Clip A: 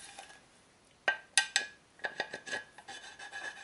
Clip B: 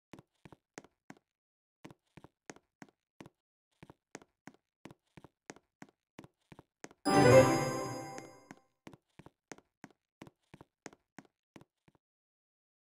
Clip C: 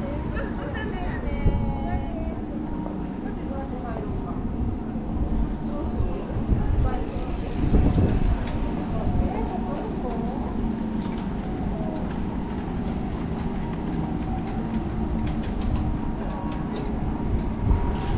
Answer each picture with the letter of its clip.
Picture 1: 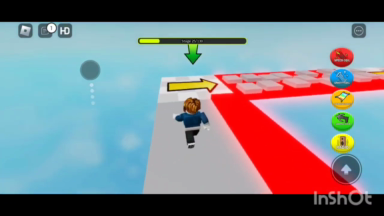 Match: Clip B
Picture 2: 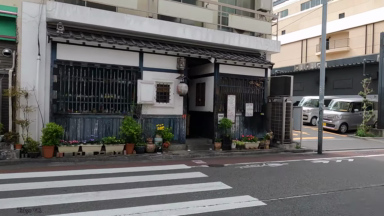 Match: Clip C